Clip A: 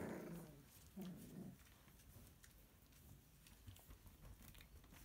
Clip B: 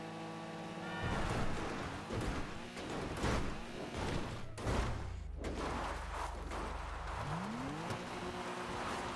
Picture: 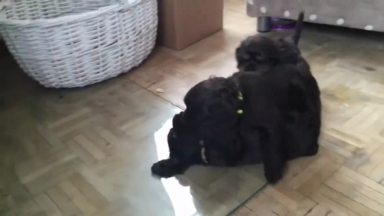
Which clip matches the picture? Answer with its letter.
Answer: A